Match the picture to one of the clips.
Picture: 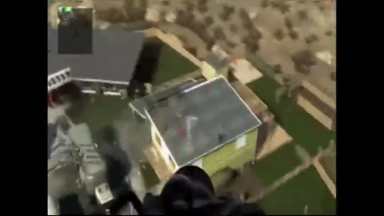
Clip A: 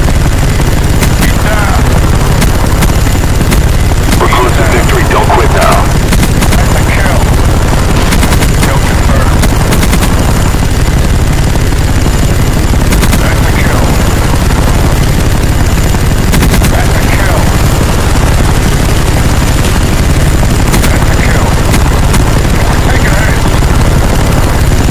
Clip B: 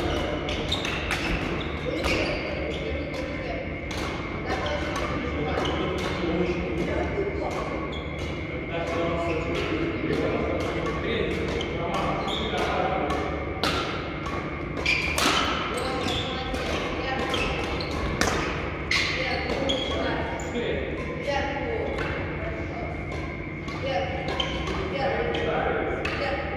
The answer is A